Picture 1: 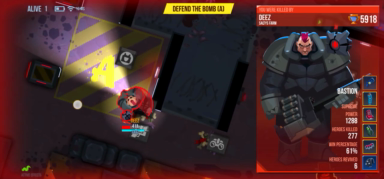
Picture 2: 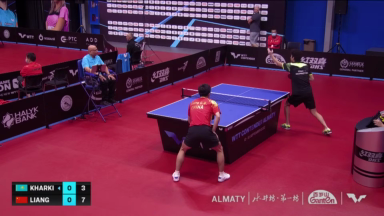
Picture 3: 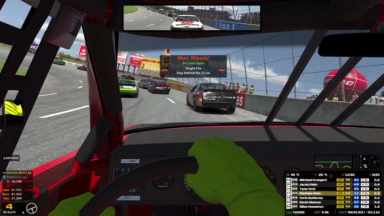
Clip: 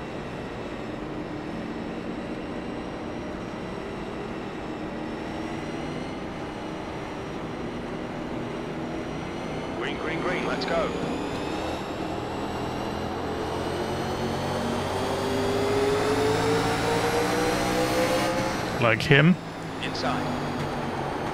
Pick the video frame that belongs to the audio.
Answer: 3